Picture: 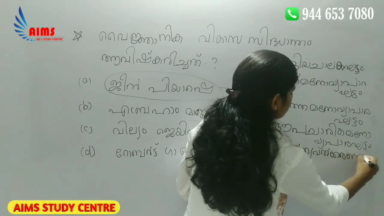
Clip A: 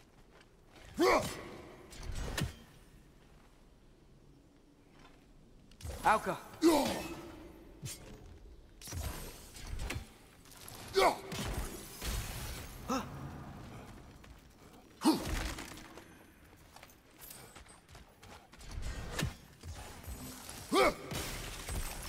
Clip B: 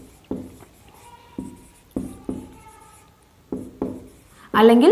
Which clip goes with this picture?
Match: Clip B